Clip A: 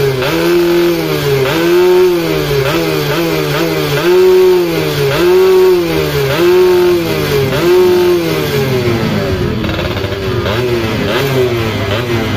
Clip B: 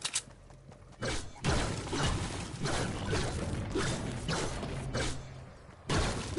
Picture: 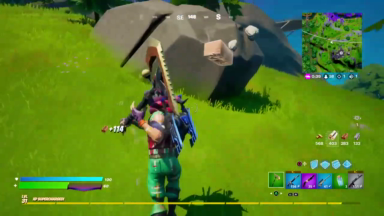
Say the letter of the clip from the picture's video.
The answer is B